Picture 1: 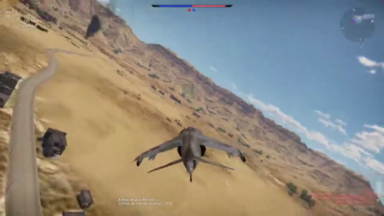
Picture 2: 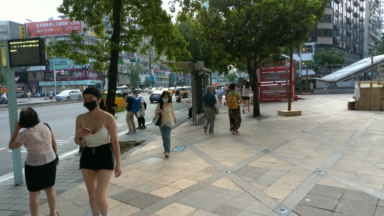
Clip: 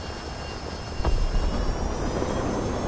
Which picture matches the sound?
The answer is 1